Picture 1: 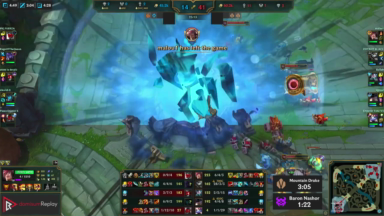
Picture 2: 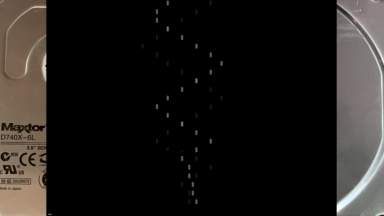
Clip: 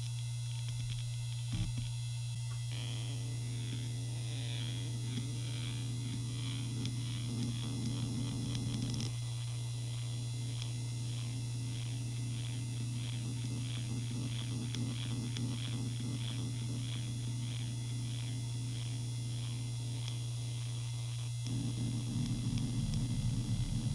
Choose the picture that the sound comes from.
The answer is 2